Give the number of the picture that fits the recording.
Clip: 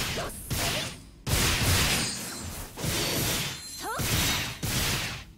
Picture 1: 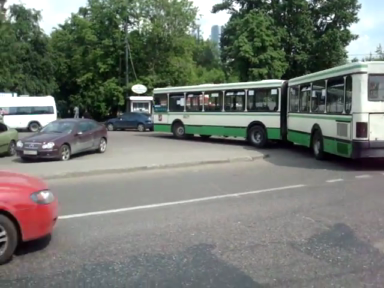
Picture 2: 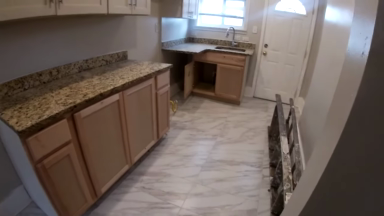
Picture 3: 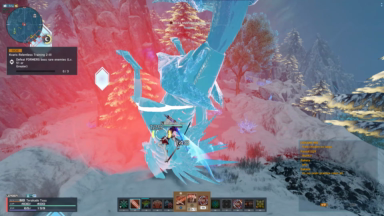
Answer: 3